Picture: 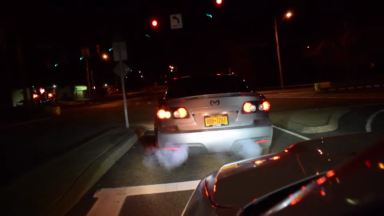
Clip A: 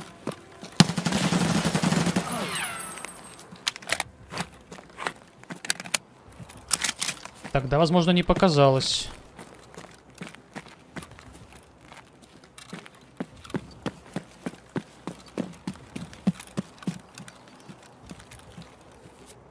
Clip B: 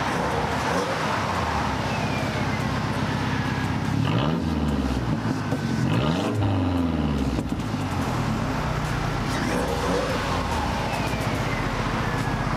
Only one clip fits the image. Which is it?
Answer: B